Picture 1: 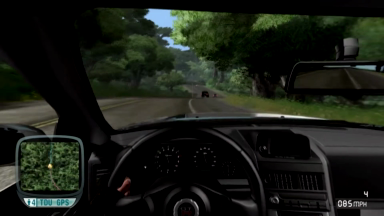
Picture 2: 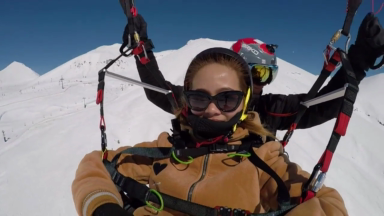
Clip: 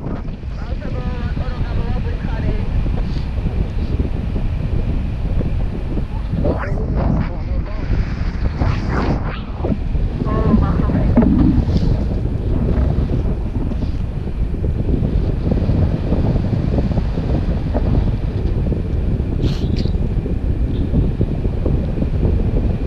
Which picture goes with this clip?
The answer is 2